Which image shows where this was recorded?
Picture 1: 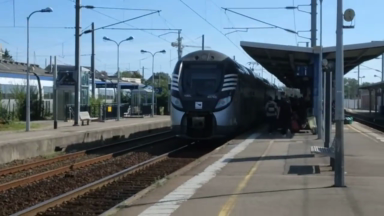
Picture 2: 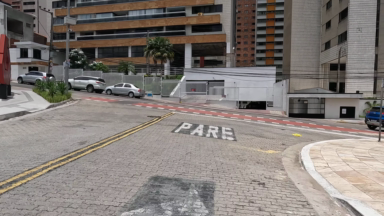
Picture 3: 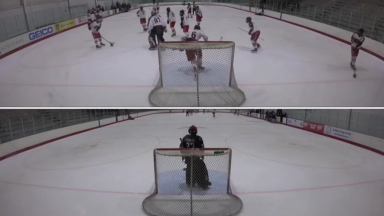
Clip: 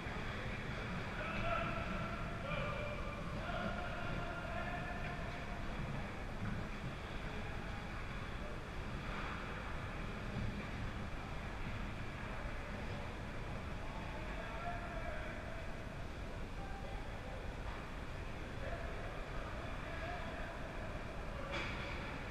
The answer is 3